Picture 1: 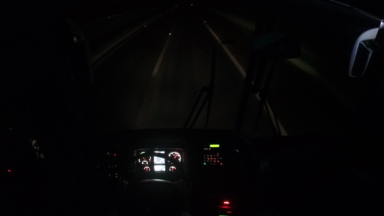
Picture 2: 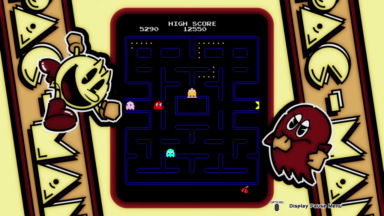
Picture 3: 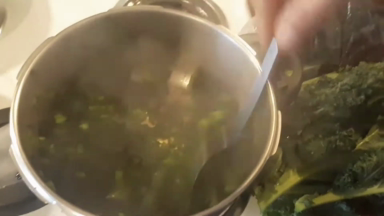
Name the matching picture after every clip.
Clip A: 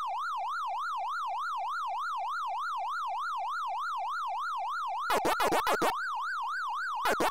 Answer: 2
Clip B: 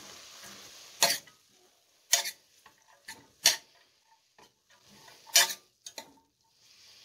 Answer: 3